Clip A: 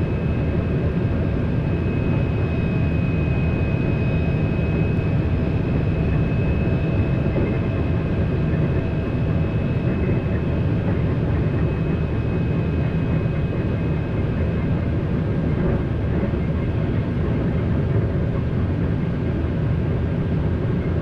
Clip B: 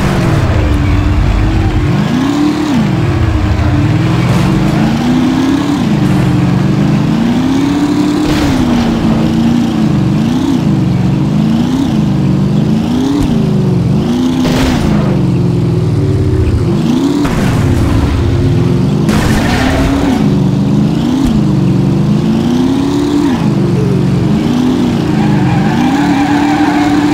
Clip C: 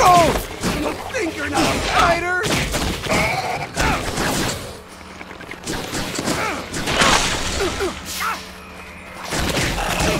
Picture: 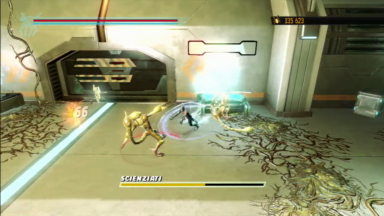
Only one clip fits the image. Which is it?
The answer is C